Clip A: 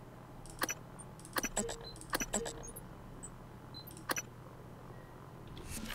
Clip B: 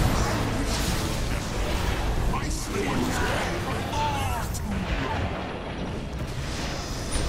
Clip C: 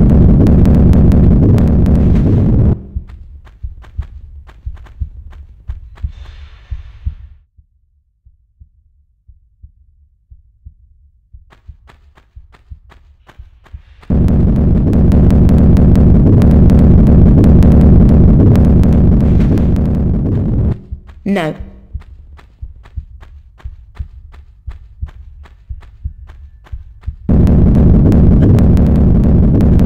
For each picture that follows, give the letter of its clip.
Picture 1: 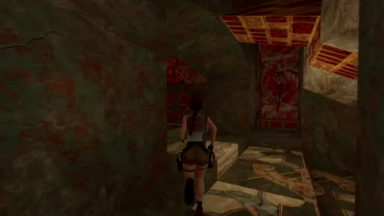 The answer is C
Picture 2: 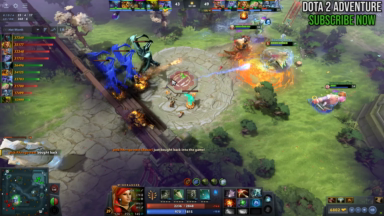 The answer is B